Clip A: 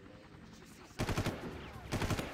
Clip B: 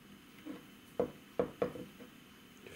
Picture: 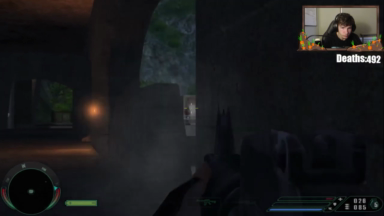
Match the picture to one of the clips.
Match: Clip A